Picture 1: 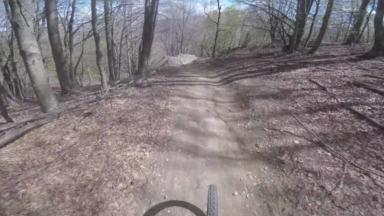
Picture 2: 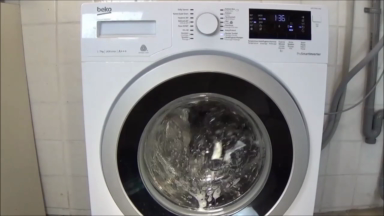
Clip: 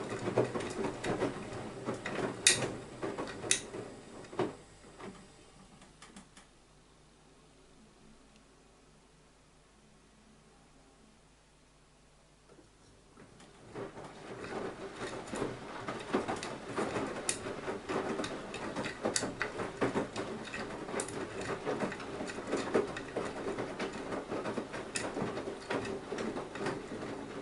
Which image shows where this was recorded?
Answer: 2